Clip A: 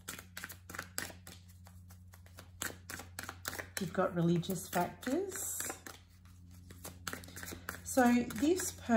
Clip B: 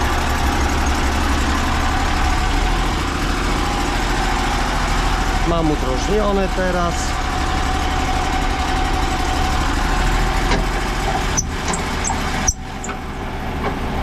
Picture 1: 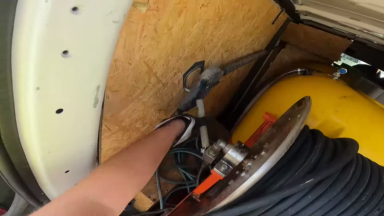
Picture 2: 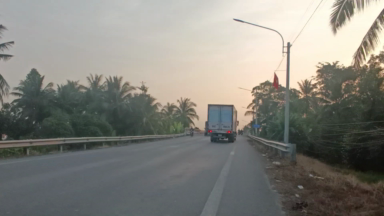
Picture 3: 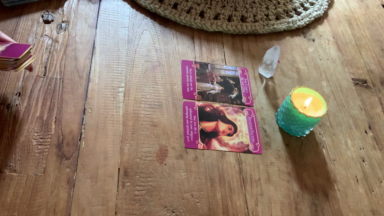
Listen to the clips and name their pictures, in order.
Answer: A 3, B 1